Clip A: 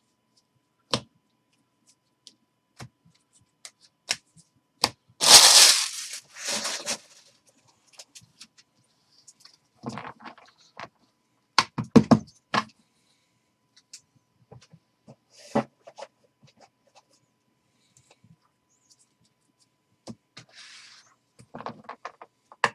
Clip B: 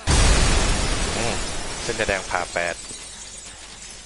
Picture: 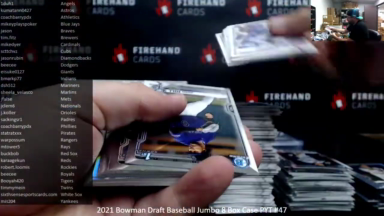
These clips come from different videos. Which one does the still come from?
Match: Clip A